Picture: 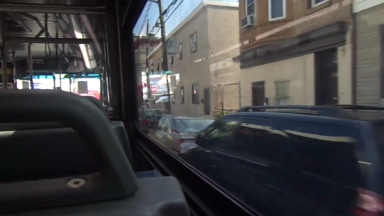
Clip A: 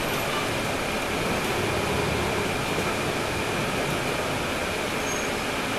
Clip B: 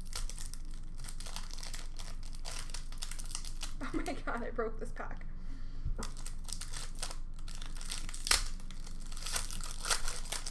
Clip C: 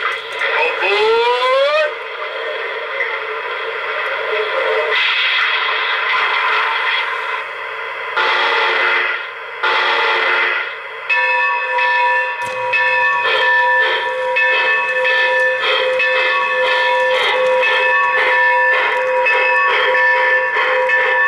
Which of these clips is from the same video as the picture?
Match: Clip A